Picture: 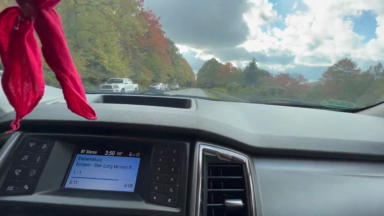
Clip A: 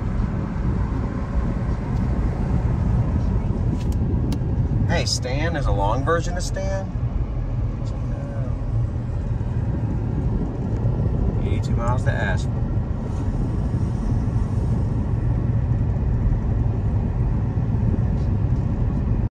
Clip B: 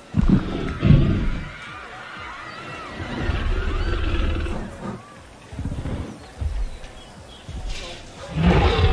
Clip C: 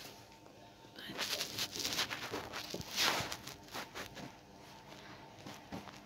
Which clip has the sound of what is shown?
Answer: A